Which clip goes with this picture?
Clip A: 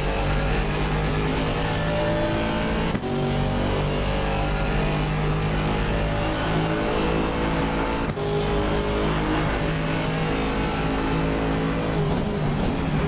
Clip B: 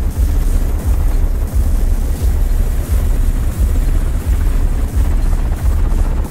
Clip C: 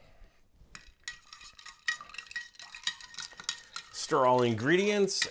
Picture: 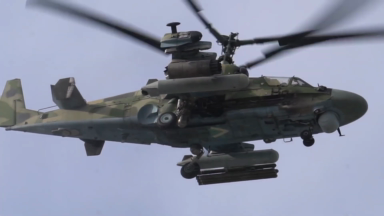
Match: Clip B